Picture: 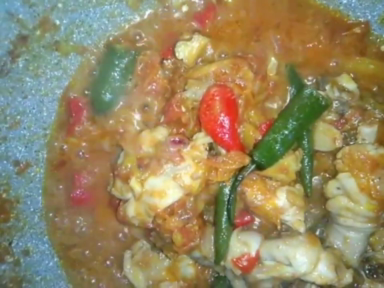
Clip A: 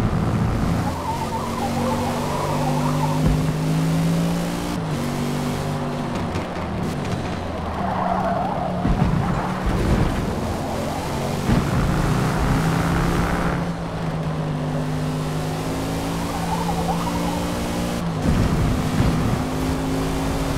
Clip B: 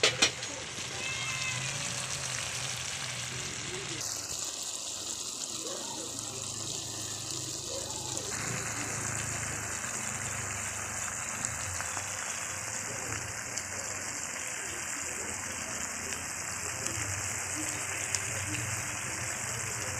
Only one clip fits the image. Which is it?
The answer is B